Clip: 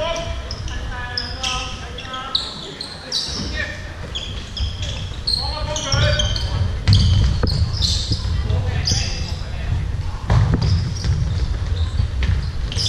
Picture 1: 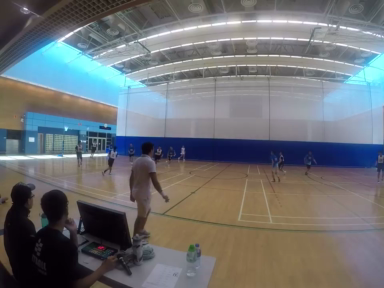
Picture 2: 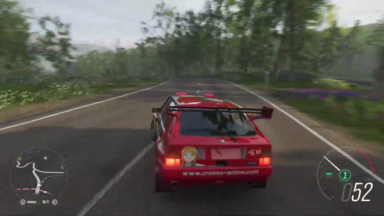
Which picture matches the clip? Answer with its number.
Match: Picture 1